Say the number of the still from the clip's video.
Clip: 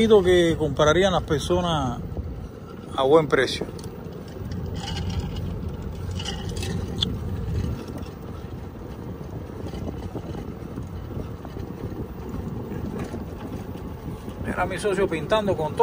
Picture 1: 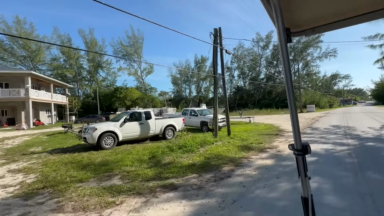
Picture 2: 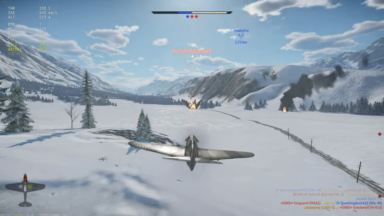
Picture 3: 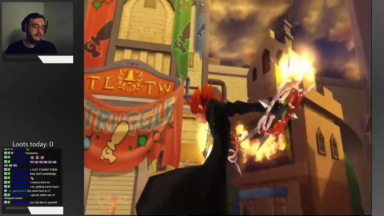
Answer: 1